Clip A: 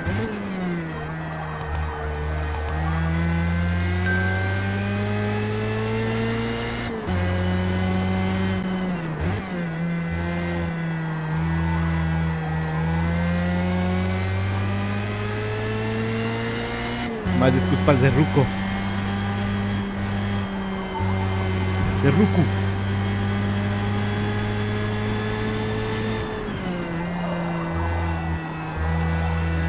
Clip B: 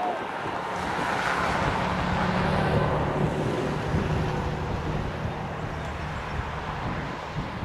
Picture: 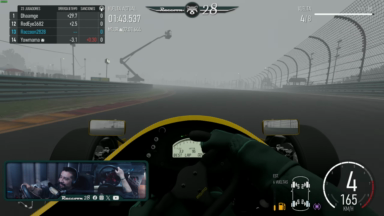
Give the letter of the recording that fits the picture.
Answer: A